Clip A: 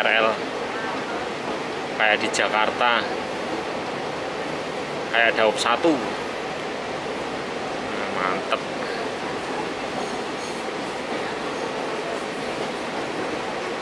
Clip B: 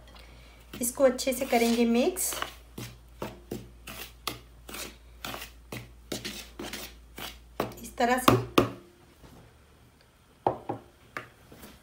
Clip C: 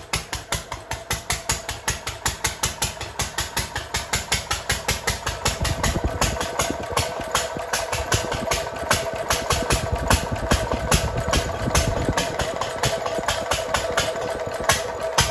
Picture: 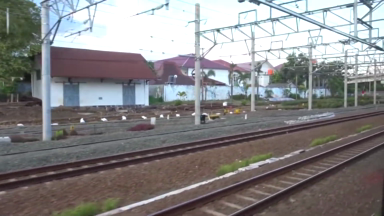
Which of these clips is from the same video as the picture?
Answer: A